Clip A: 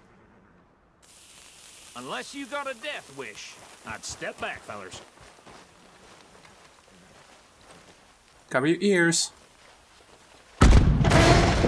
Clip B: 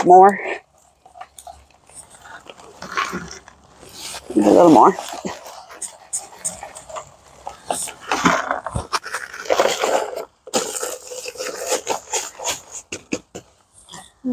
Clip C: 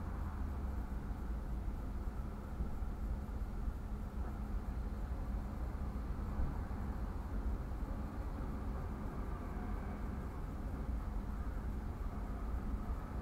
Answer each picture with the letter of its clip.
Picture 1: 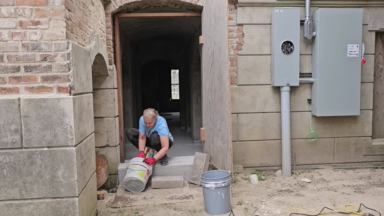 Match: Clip B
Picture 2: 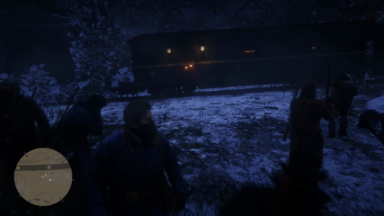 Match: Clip A